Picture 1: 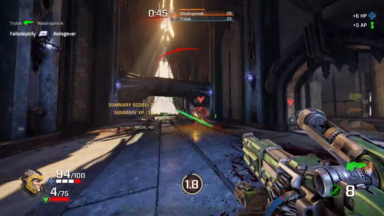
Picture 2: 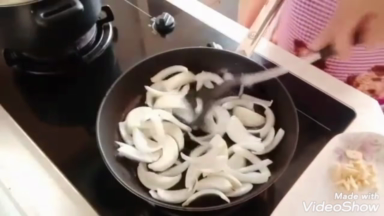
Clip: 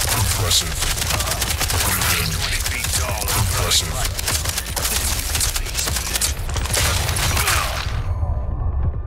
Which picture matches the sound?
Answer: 1